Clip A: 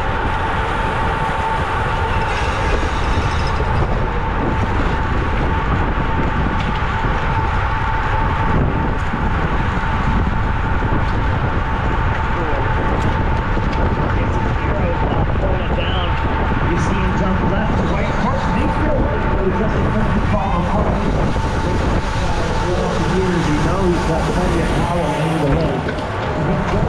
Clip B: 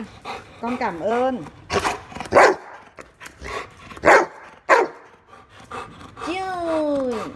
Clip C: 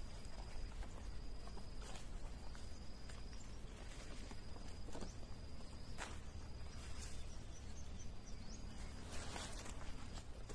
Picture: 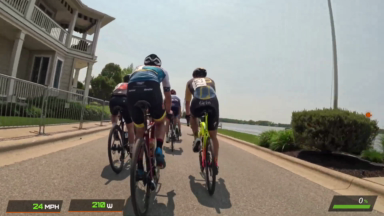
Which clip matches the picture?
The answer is A